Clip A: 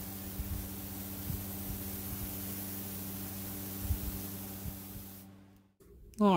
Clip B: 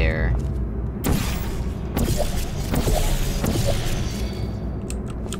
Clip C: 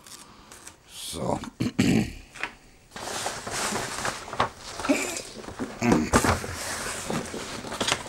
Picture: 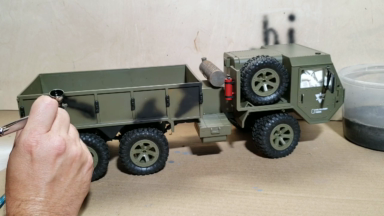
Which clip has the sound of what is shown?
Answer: A